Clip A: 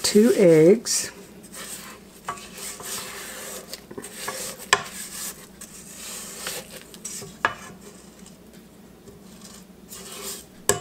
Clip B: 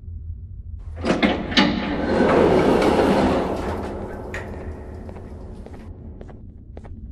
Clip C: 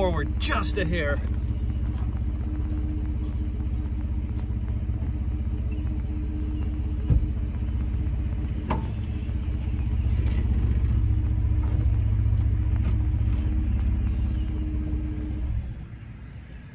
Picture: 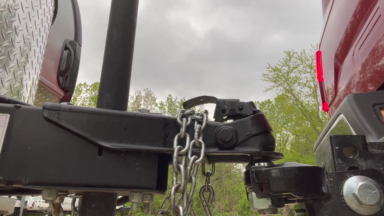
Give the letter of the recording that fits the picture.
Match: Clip C